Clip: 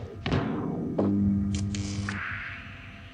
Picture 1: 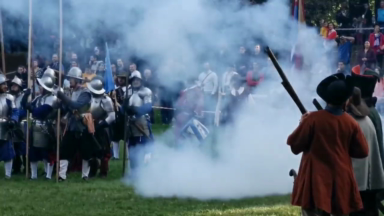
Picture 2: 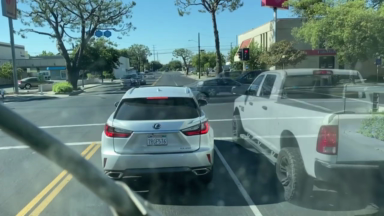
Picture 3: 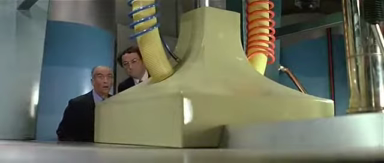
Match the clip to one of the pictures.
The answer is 3